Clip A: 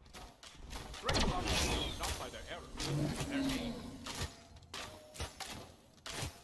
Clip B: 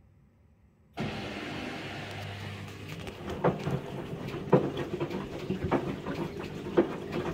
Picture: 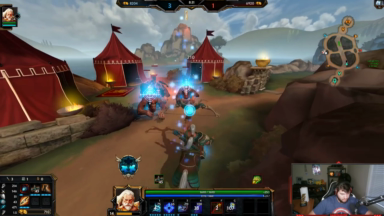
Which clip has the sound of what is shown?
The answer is A